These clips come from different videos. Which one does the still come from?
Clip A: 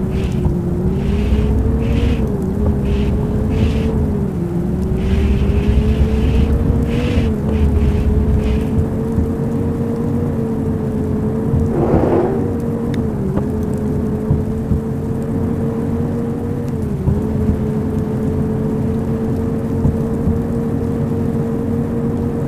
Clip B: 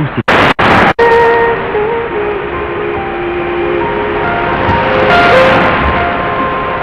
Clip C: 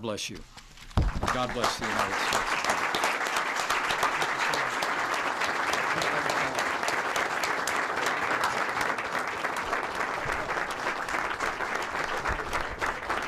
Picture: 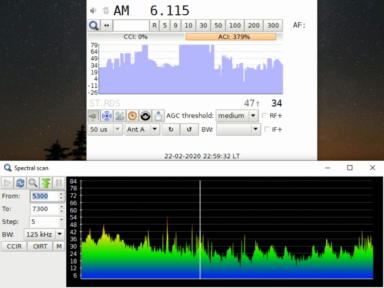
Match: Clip B